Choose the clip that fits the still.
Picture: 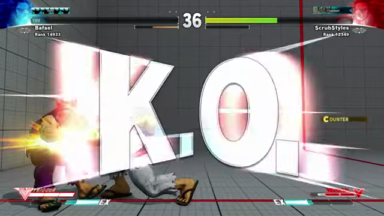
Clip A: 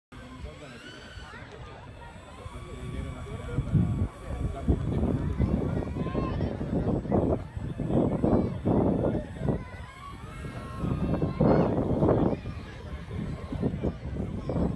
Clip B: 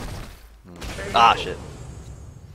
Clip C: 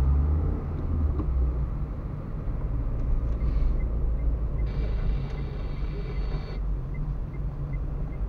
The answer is B